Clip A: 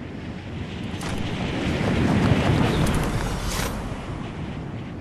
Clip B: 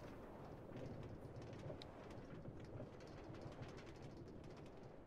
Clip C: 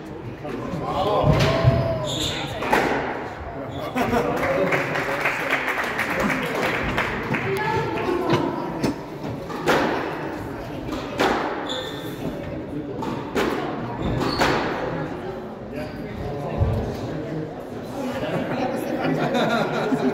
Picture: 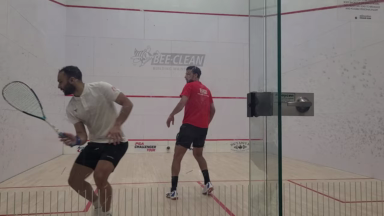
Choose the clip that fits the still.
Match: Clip C